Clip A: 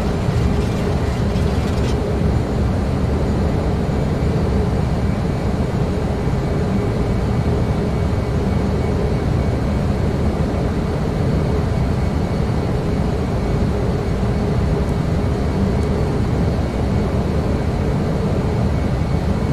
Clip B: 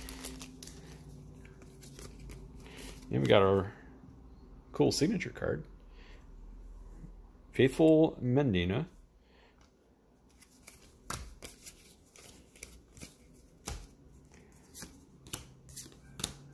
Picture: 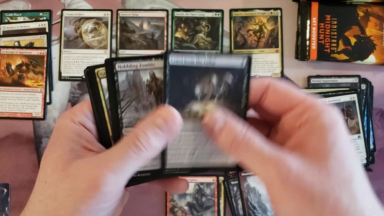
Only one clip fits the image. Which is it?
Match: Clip B